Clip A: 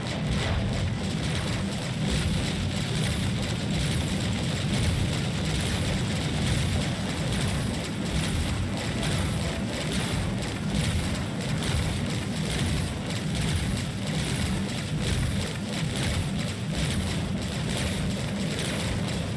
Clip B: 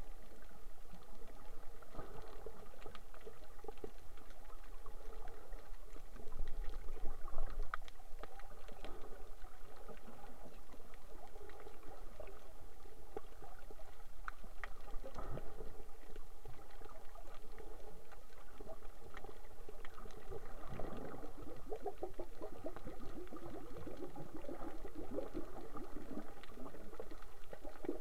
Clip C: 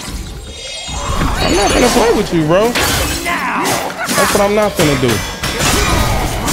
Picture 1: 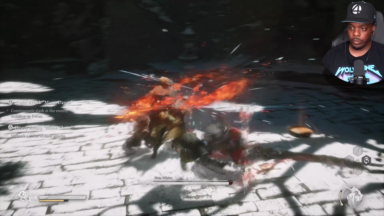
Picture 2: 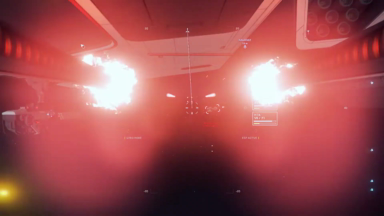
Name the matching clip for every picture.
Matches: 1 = C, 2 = A